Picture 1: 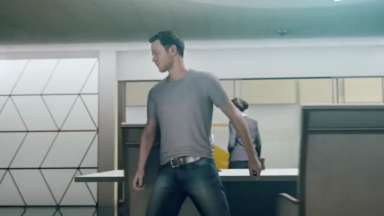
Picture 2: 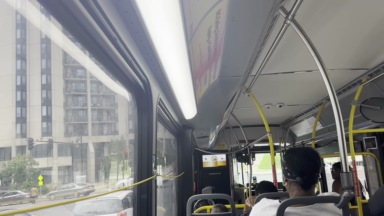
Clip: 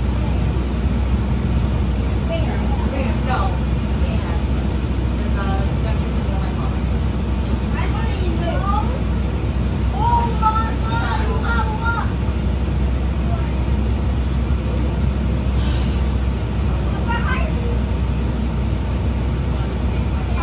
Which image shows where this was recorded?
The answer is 2